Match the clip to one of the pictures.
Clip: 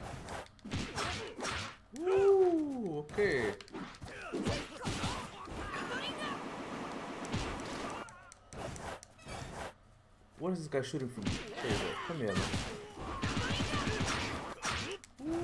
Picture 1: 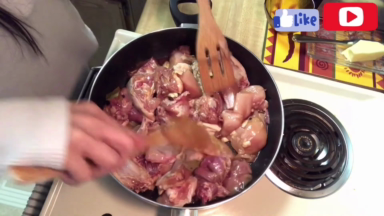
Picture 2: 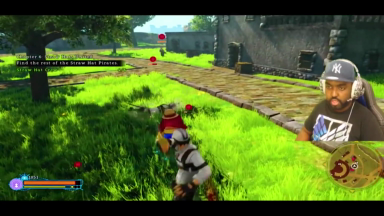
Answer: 2